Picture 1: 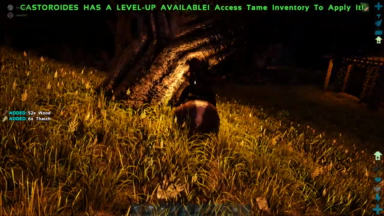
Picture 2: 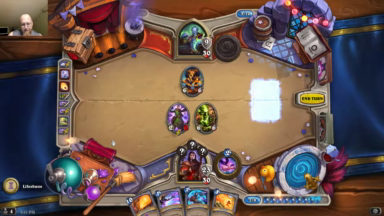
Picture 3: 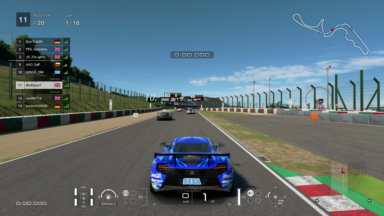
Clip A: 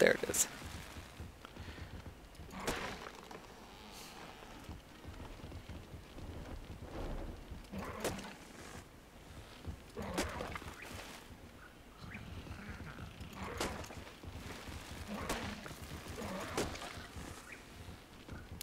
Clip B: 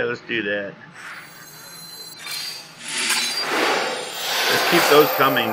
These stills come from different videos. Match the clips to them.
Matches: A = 1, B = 2